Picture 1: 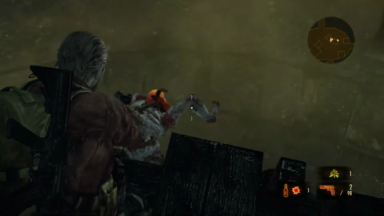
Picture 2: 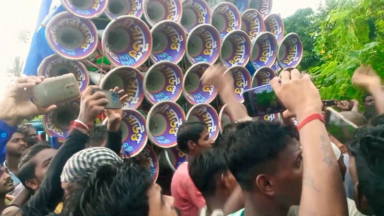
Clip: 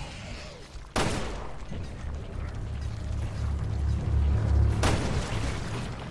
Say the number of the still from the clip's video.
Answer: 1